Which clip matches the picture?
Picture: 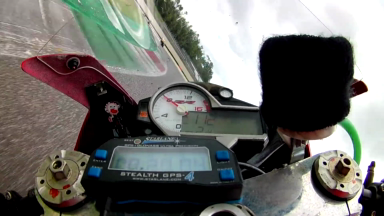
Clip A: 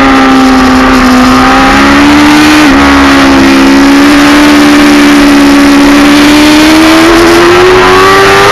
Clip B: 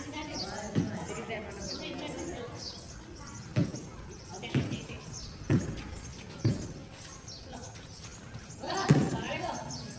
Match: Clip A